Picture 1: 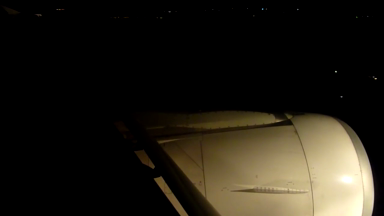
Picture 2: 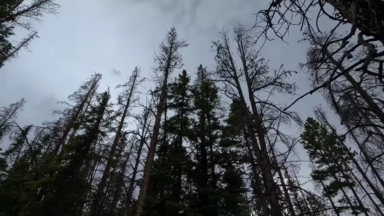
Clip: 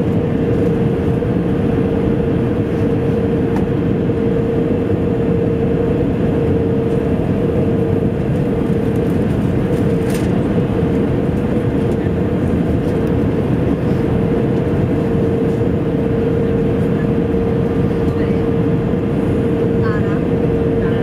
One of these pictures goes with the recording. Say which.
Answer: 1